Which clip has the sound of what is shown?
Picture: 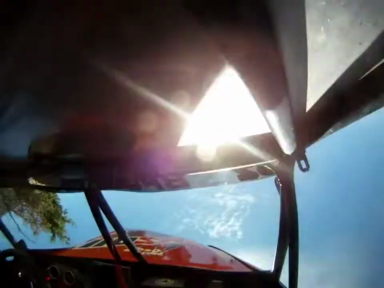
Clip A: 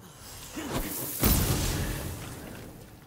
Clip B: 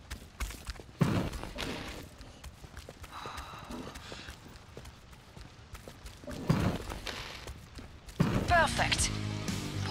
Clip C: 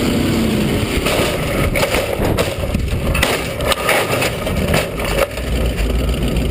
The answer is C